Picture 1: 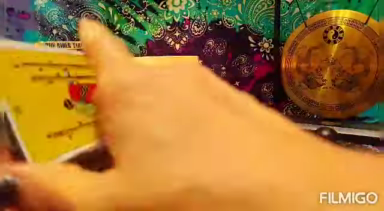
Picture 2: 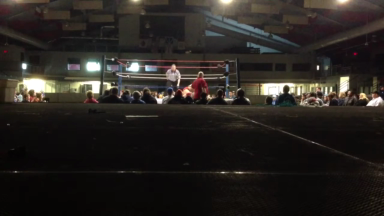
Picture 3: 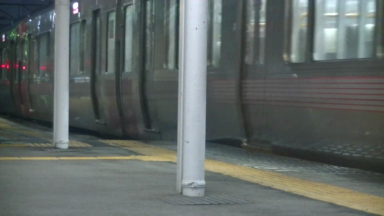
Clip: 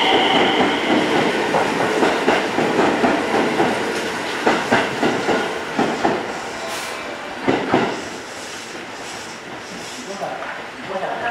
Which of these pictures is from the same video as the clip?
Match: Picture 3